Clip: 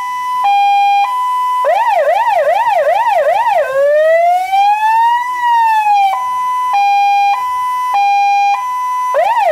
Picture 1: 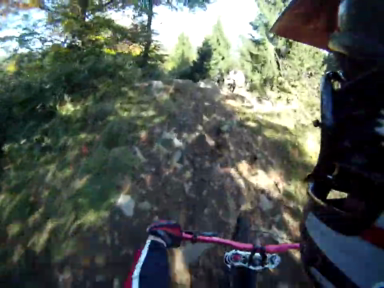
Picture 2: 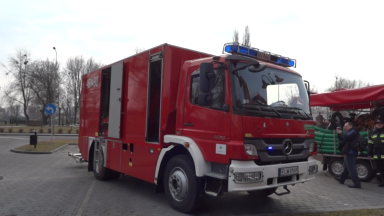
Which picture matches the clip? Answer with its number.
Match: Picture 2